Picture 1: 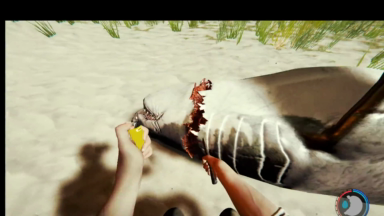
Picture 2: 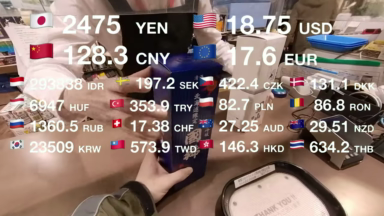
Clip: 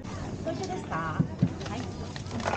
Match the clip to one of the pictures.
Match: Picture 2